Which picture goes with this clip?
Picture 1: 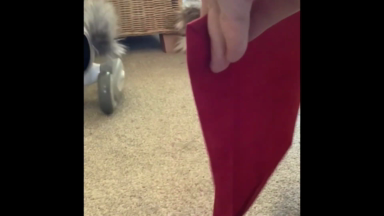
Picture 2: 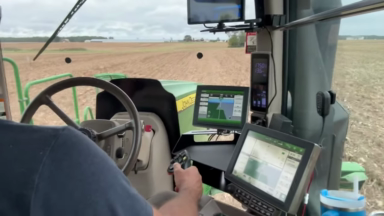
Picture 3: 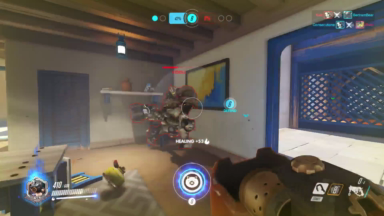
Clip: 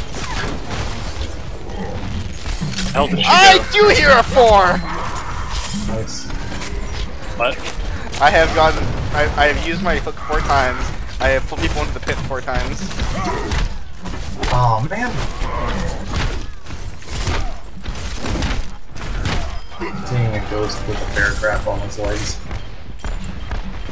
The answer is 3